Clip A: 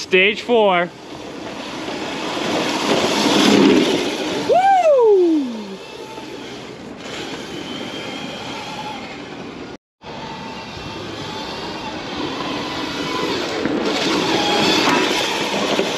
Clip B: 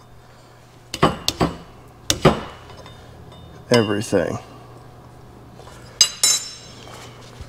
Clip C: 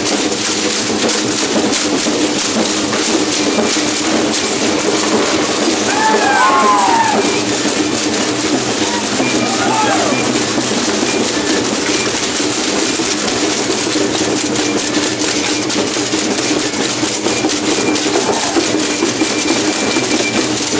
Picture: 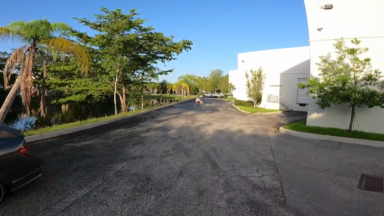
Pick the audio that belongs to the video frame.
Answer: A